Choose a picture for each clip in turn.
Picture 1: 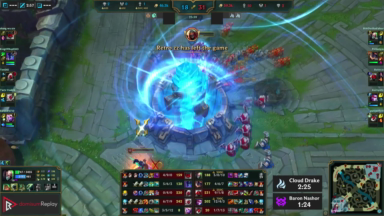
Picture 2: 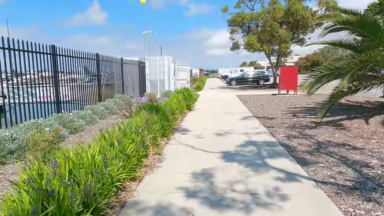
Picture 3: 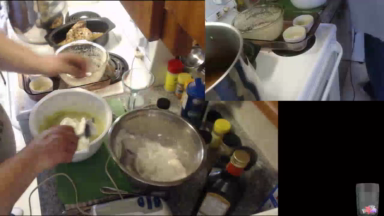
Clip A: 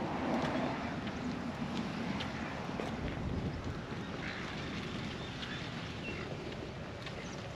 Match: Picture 2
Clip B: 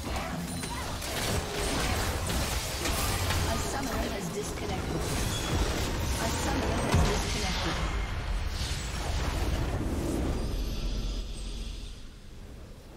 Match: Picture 1